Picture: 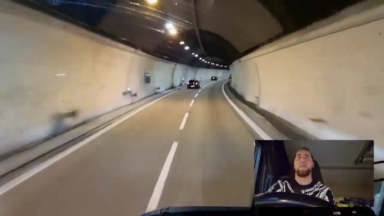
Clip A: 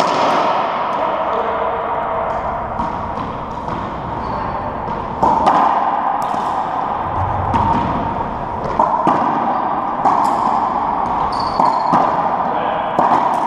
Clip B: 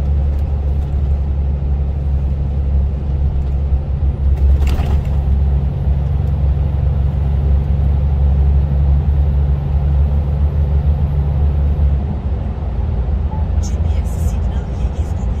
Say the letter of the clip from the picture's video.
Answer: B